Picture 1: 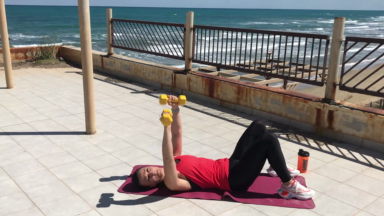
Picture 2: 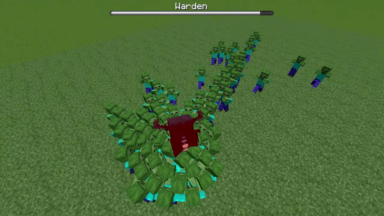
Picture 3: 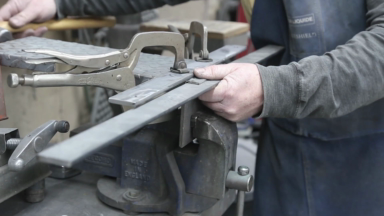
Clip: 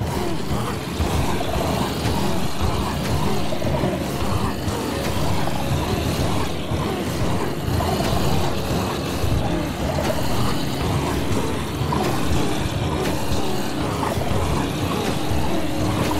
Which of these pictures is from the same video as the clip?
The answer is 2